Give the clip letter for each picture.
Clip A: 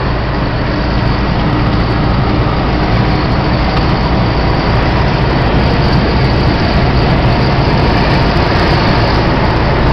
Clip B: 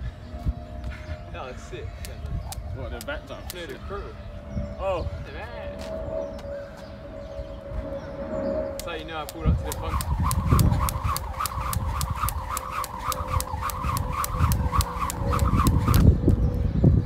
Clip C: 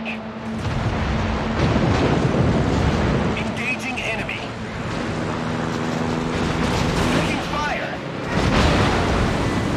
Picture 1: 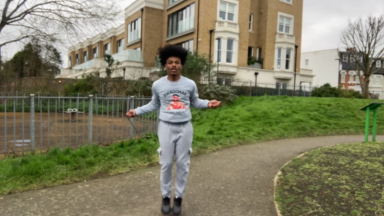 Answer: B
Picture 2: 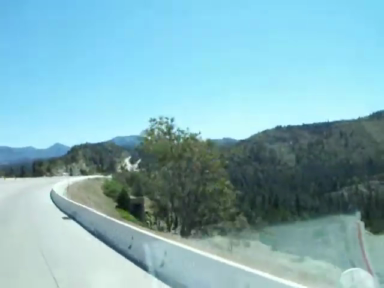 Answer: A